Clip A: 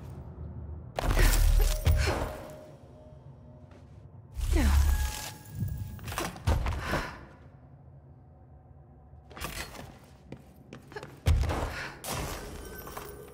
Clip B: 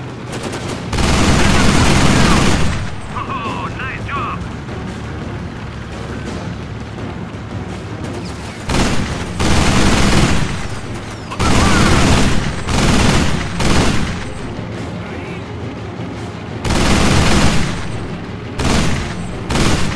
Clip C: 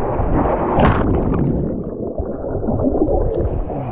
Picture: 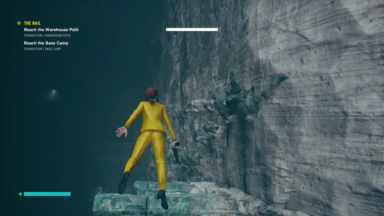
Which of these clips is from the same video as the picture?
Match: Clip A